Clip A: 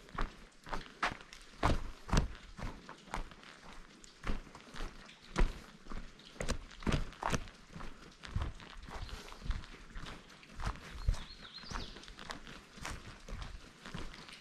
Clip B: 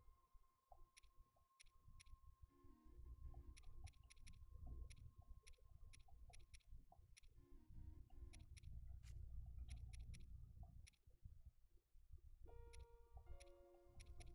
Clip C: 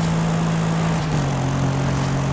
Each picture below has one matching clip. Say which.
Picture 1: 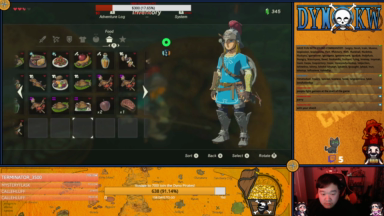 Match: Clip B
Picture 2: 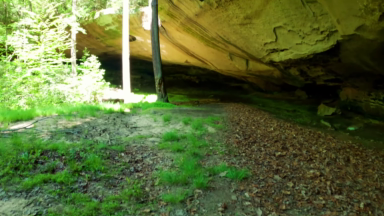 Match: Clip A